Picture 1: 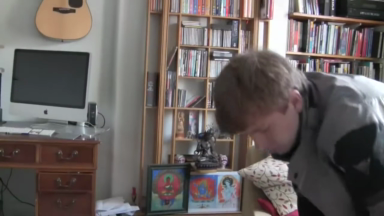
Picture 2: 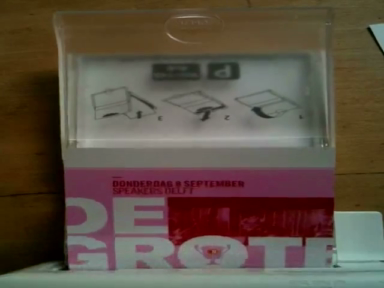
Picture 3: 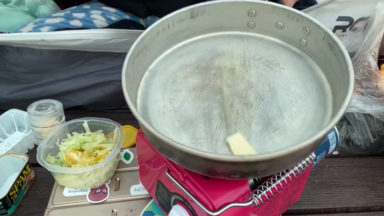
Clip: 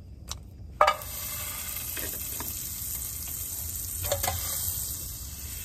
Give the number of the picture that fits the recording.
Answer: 3